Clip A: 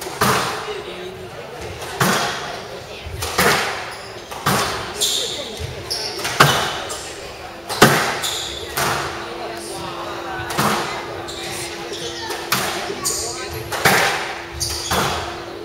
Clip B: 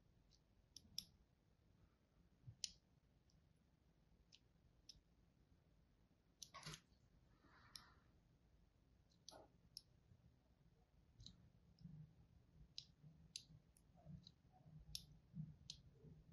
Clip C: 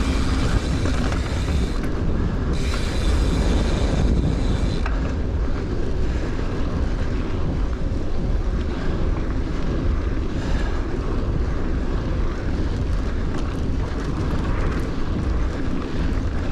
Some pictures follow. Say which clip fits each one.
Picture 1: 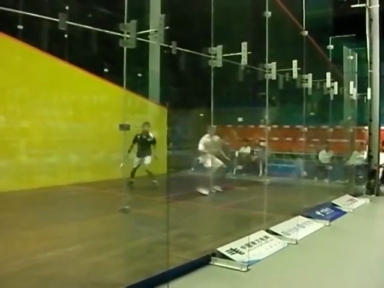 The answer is A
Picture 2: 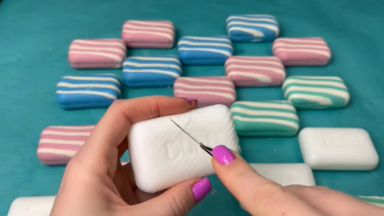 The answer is B